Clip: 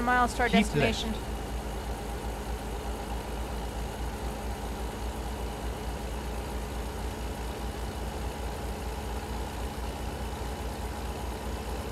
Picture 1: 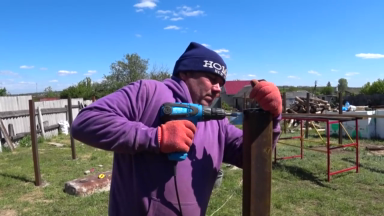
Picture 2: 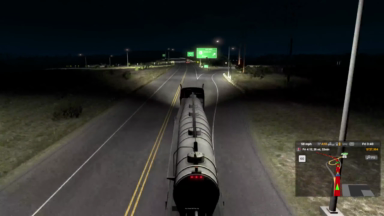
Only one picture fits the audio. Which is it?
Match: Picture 2